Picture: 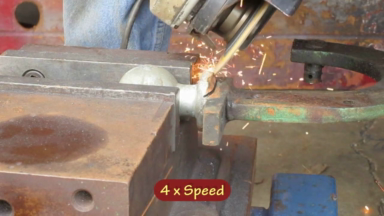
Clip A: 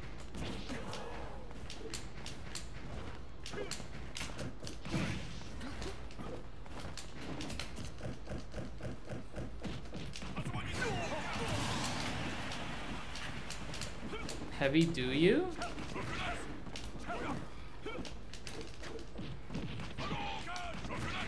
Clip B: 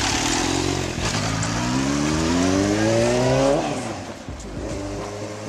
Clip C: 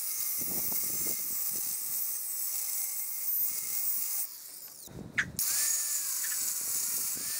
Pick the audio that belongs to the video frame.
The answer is C